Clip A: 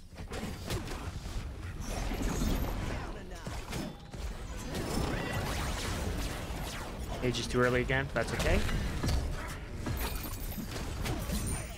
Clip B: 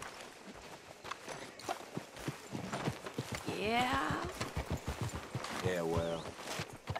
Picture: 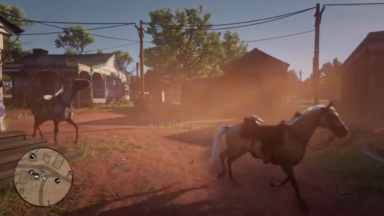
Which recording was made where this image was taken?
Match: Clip B